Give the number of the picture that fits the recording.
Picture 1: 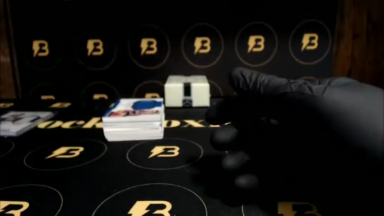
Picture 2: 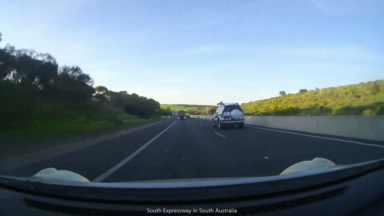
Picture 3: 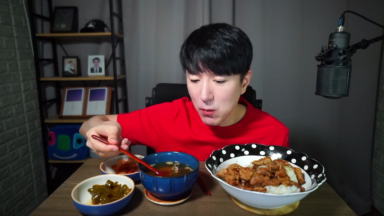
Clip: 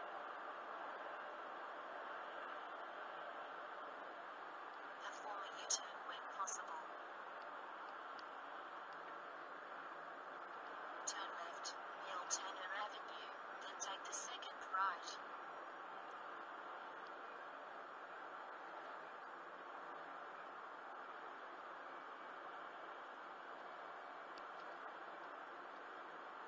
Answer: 2